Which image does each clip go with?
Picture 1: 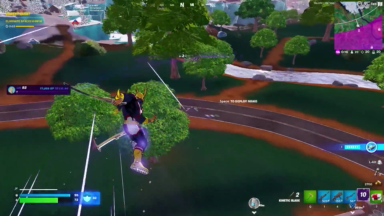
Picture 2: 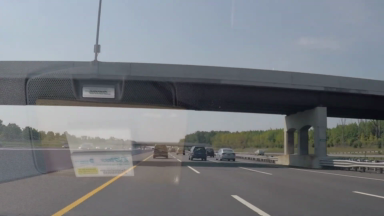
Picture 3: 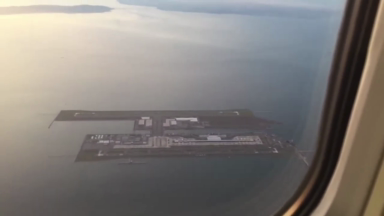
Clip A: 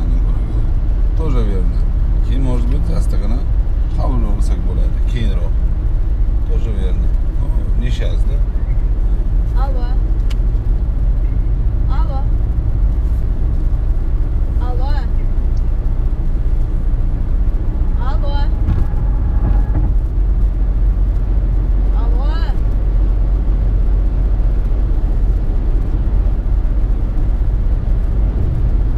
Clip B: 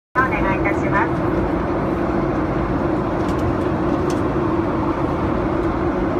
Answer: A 2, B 3